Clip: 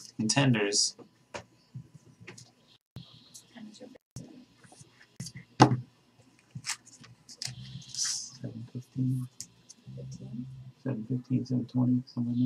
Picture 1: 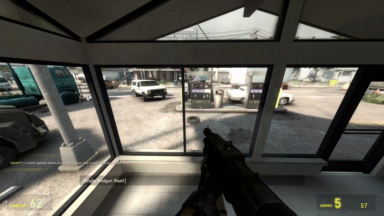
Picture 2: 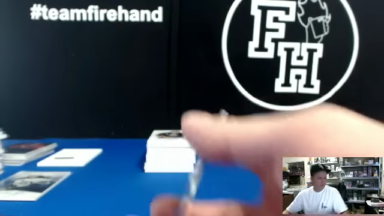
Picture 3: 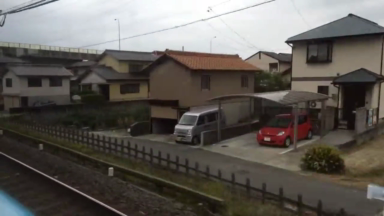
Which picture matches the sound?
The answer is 2